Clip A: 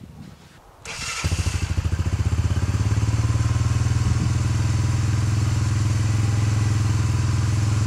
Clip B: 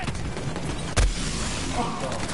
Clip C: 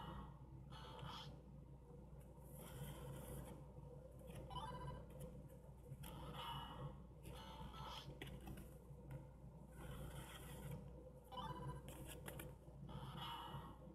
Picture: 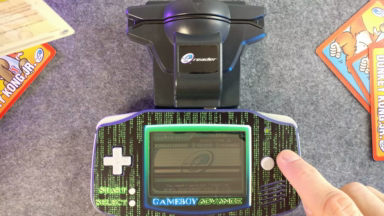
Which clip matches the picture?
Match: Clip C